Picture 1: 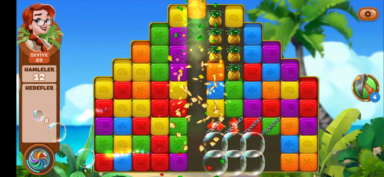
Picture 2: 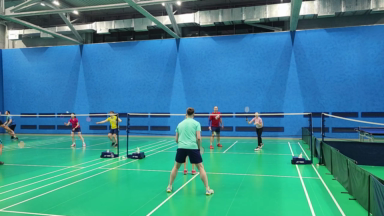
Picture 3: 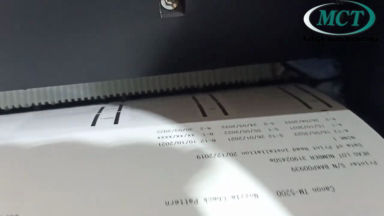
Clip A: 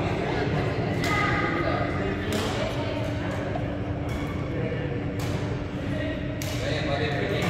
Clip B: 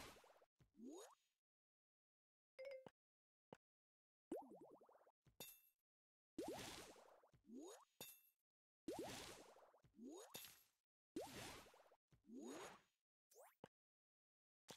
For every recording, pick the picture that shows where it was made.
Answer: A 2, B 1